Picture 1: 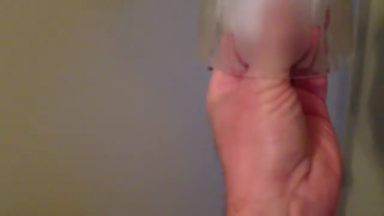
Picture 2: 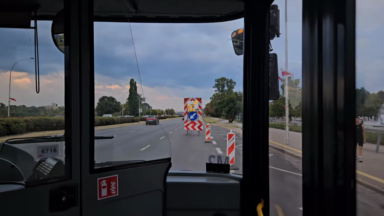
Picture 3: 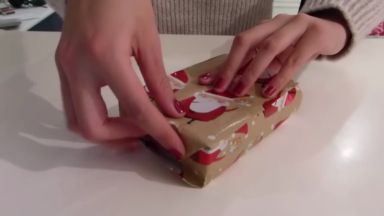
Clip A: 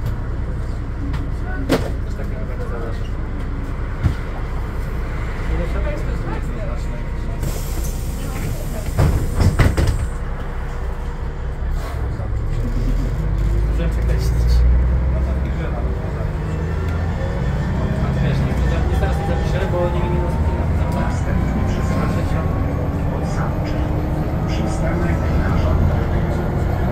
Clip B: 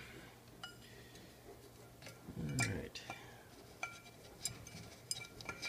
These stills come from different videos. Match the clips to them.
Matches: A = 2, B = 1